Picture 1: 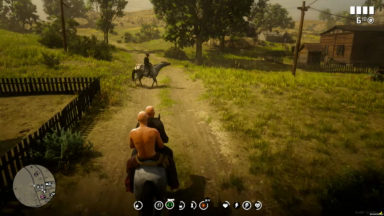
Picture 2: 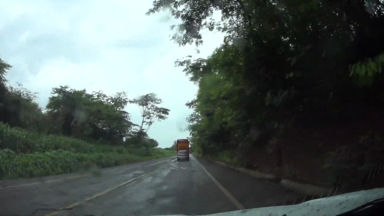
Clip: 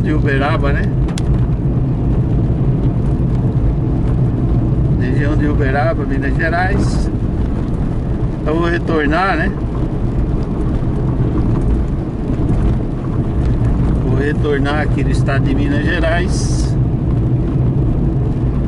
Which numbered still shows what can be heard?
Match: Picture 2